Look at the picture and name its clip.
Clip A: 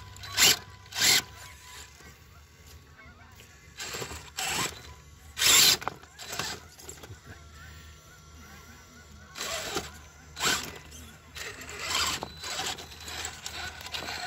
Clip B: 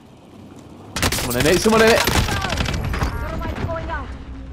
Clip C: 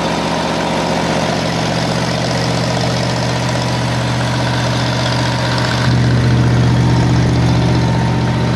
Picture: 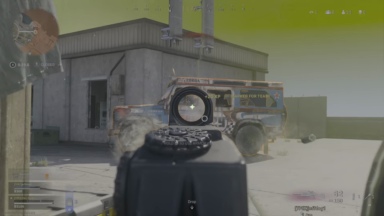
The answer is B